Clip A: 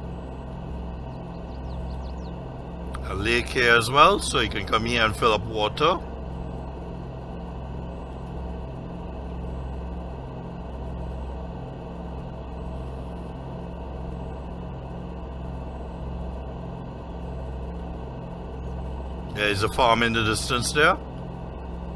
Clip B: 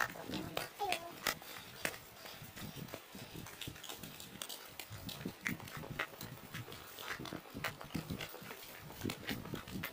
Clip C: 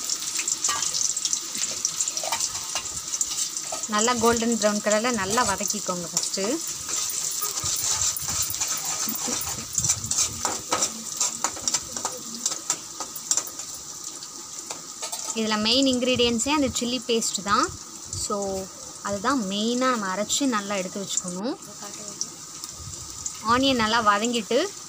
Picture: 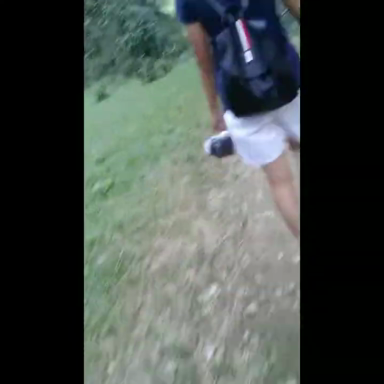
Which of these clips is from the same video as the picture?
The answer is B